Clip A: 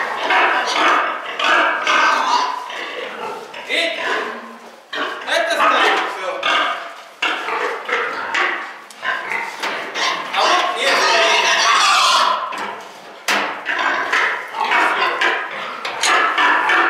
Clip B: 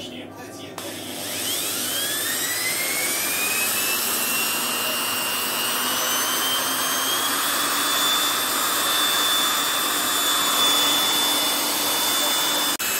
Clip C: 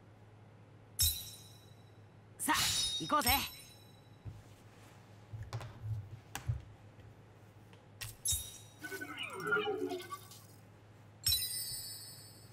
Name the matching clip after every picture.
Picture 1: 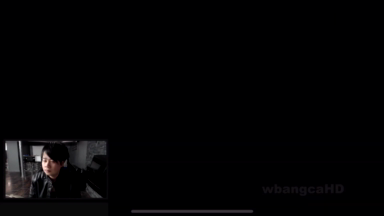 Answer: C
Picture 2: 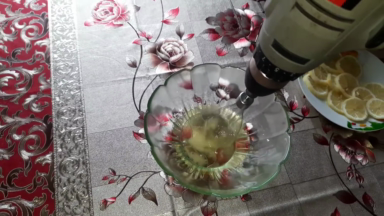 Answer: B